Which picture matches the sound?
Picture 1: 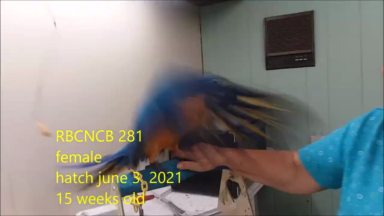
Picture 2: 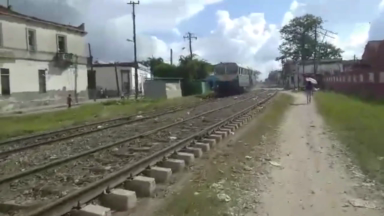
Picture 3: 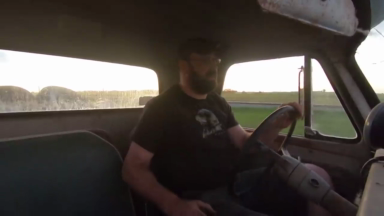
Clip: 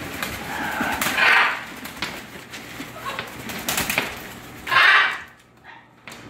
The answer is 1